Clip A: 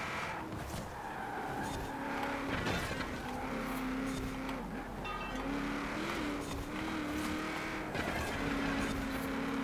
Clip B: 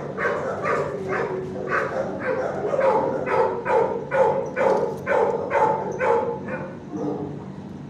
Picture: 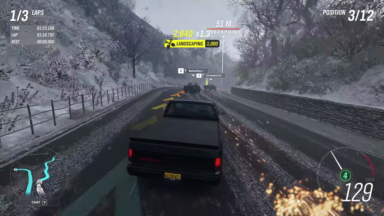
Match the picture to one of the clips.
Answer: A